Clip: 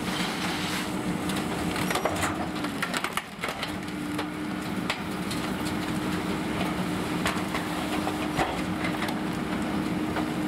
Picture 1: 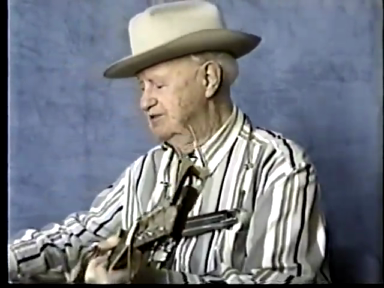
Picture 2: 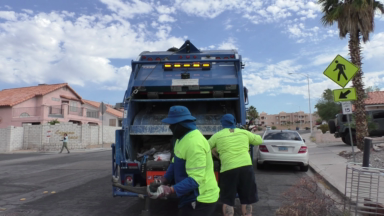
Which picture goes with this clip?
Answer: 2